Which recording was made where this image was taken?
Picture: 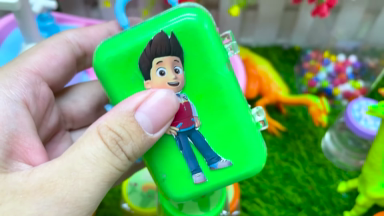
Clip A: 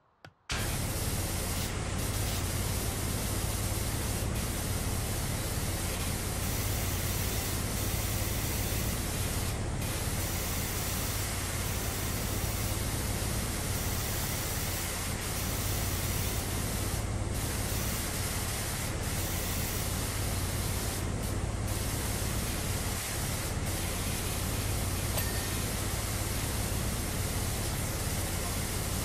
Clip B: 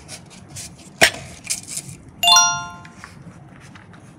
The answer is B